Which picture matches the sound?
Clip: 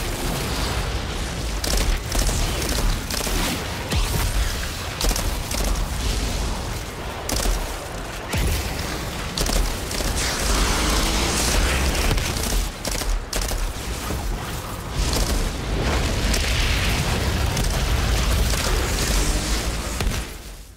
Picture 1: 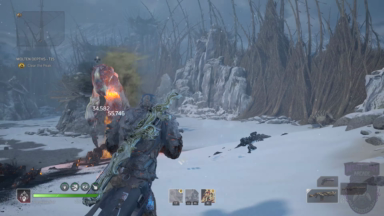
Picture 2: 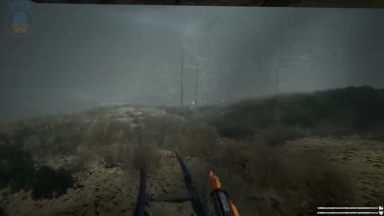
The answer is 1